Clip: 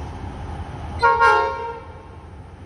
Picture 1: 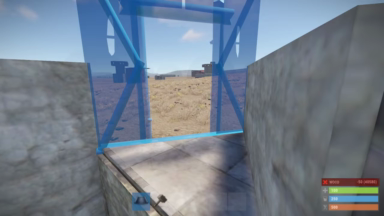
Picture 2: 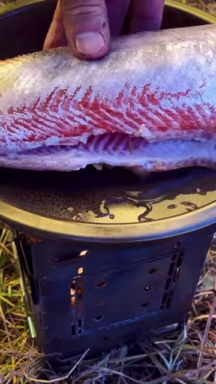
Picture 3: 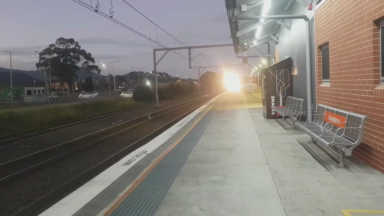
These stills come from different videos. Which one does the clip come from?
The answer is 3